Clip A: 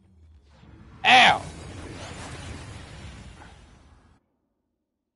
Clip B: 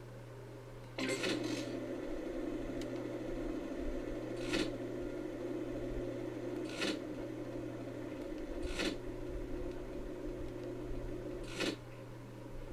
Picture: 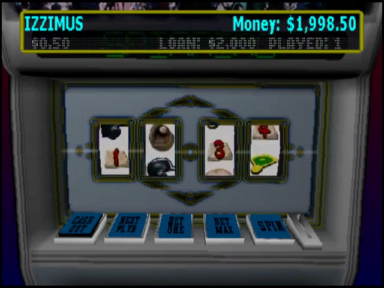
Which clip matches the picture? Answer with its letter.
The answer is B